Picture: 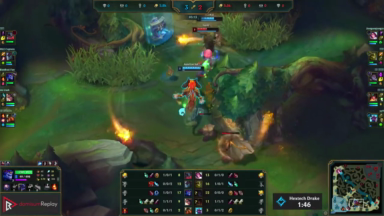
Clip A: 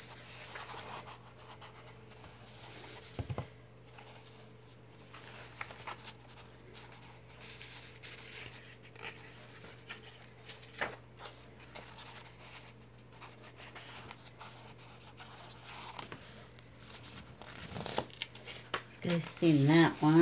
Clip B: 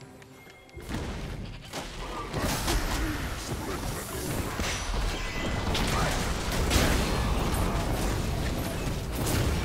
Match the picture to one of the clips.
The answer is B